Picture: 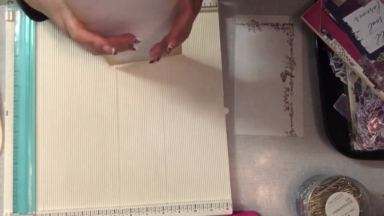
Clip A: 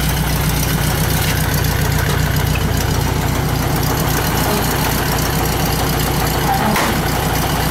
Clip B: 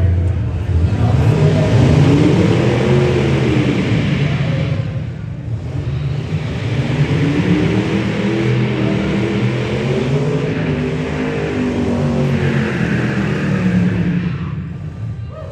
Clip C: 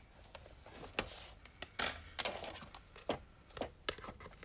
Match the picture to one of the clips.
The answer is C